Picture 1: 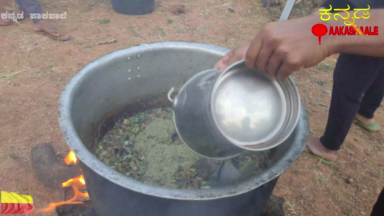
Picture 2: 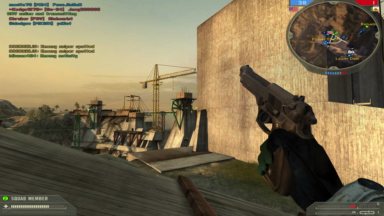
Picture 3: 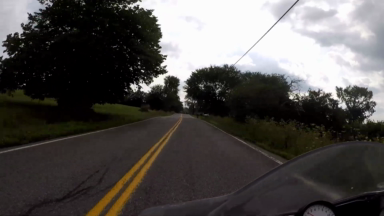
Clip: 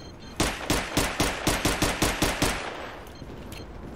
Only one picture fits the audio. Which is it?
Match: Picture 2